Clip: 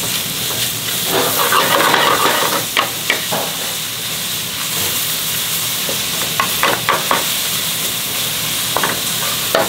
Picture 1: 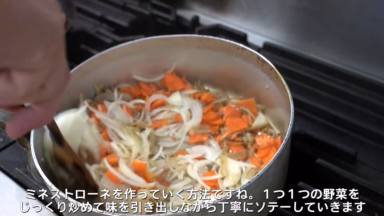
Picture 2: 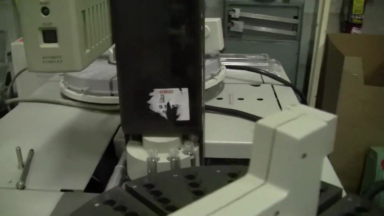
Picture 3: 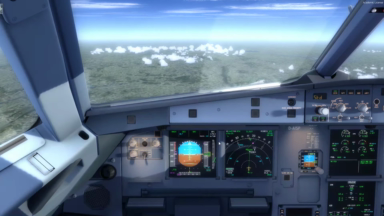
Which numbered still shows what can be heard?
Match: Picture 1